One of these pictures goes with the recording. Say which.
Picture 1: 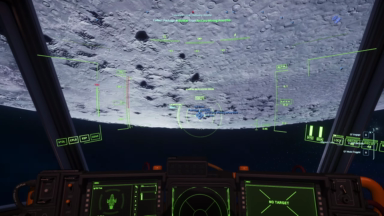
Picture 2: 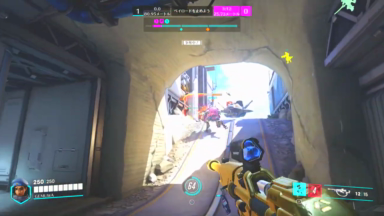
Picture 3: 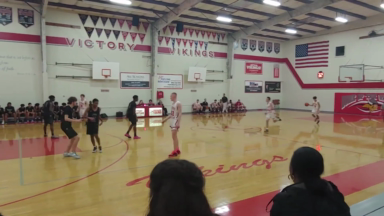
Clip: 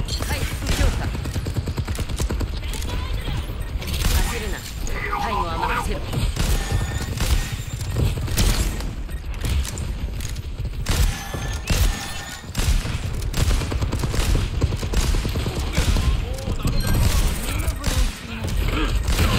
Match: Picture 2